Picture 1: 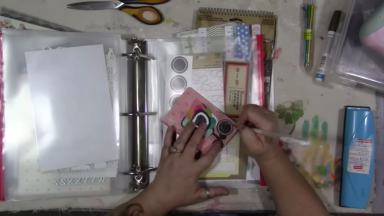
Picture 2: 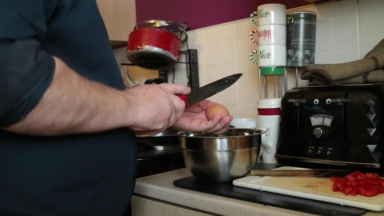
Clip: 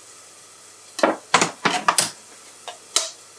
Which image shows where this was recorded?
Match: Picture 2